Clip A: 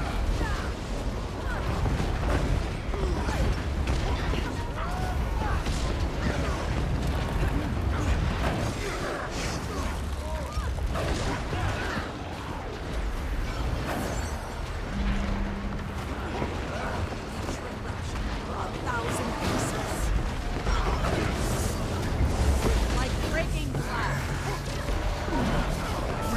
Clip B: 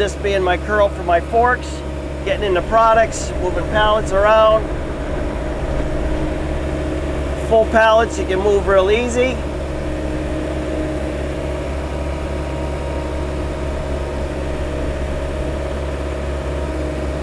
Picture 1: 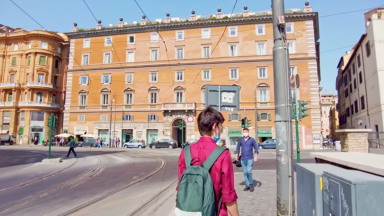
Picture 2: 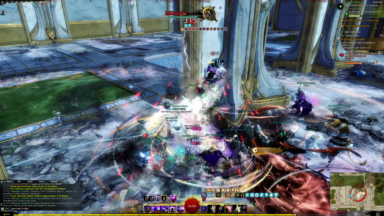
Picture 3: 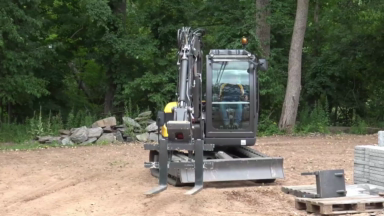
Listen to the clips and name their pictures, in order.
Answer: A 2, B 3